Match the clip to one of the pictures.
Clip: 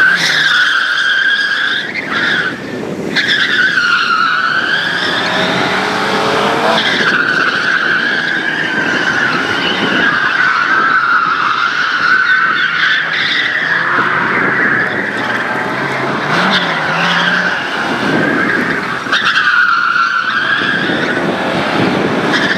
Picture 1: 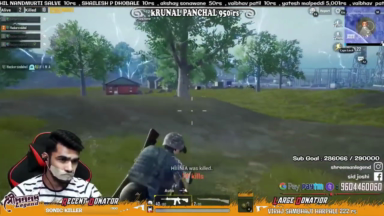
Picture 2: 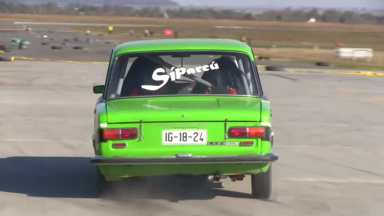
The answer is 2